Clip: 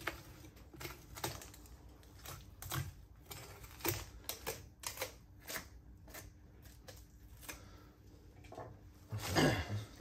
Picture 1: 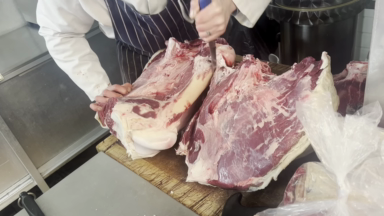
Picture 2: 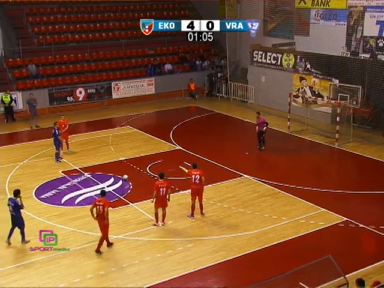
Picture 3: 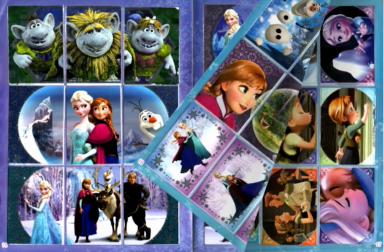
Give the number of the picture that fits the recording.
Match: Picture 1